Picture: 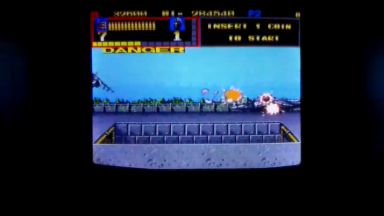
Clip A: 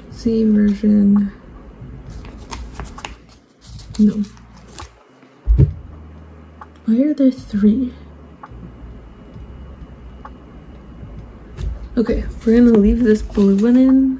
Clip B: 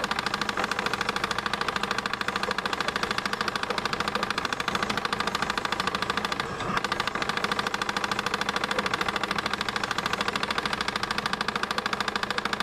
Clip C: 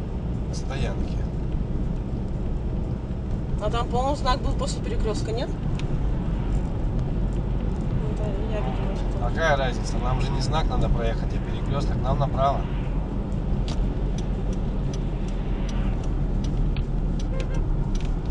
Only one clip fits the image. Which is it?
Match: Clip B